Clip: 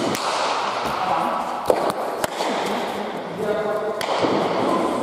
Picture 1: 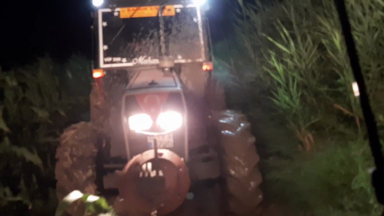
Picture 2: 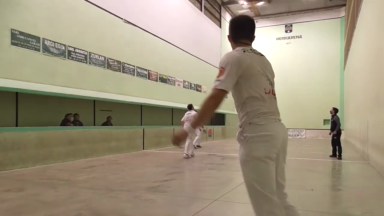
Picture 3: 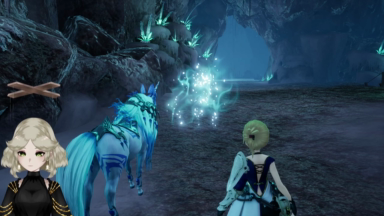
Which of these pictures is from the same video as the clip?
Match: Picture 2